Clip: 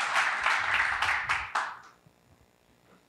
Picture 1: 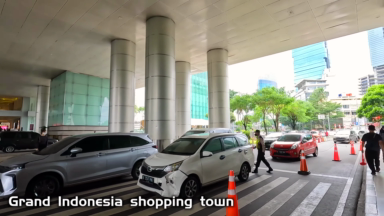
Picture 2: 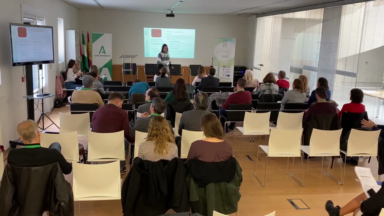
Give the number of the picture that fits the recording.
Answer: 2